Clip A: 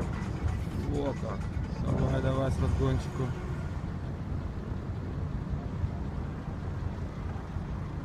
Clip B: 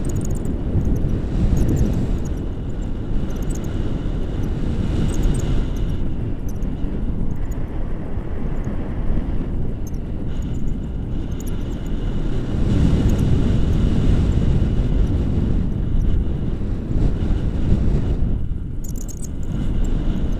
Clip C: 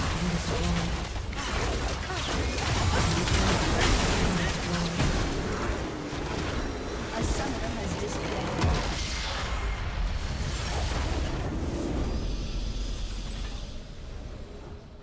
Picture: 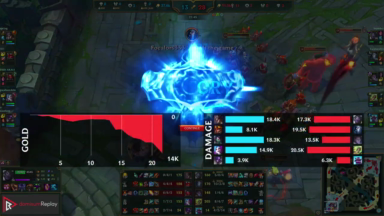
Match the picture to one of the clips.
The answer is C